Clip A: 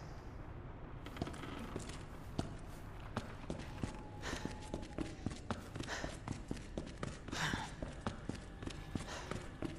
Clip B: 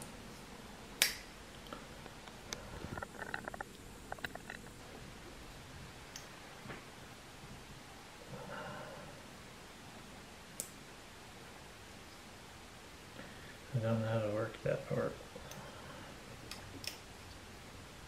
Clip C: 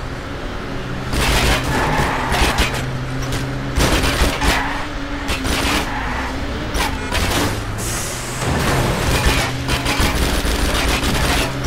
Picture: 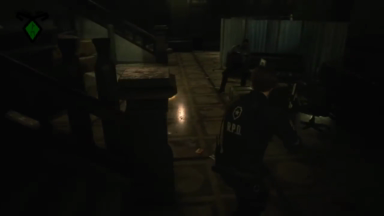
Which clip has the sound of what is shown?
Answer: A